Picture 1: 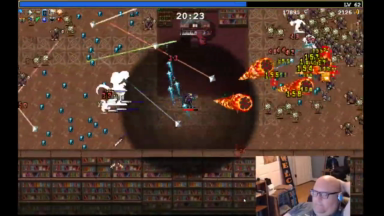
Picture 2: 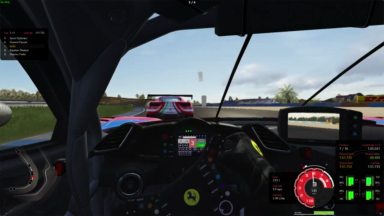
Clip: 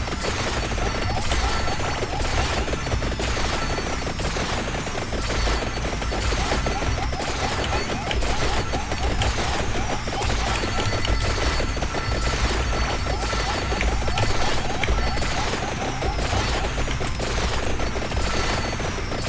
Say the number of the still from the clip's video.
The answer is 1